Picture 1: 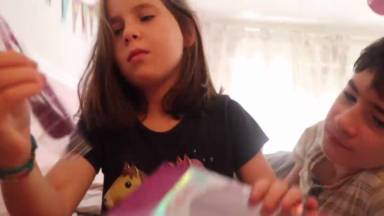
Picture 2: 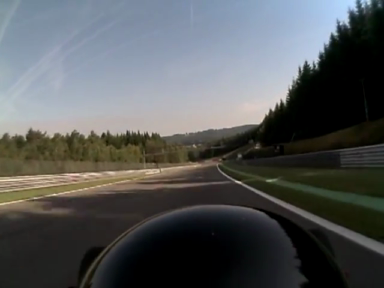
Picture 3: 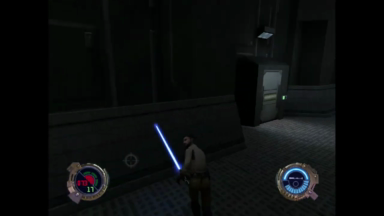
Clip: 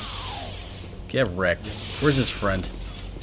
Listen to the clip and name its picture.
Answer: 3